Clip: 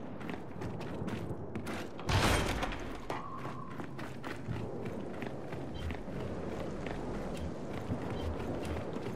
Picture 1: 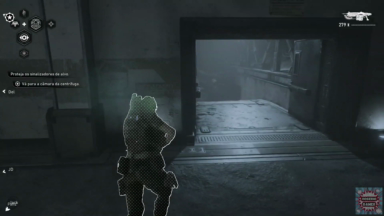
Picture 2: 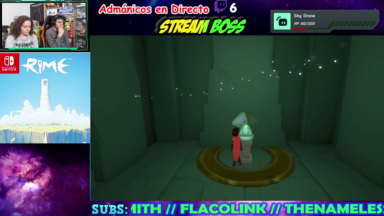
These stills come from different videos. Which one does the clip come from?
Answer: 1